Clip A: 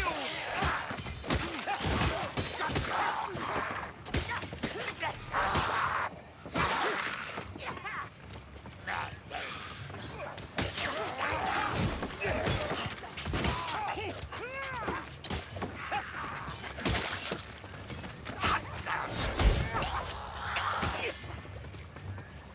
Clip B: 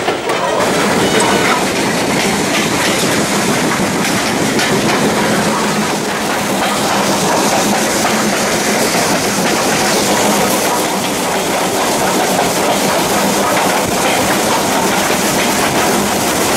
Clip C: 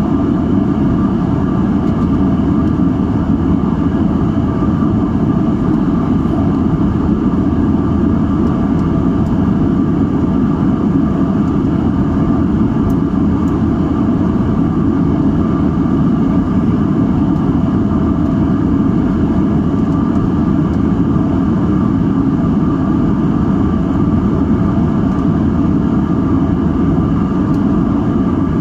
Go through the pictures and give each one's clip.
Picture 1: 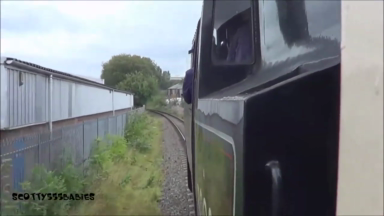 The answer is B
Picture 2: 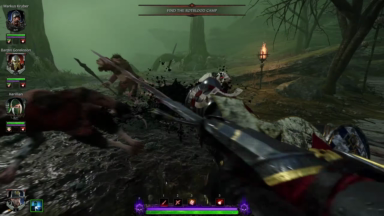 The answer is A